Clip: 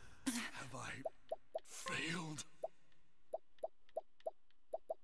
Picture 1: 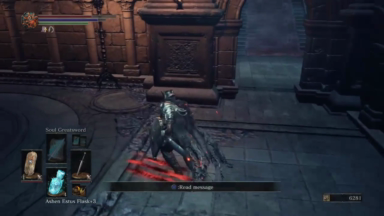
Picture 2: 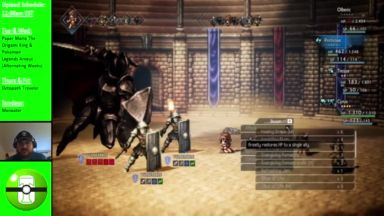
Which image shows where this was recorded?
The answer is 2